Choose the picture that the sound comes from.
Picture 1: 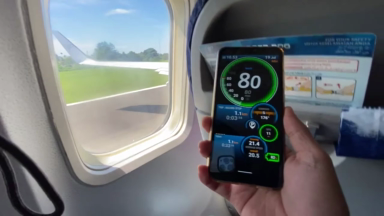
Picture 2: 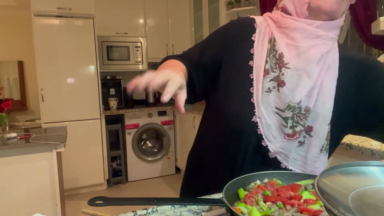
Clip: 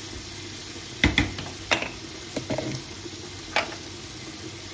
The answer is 2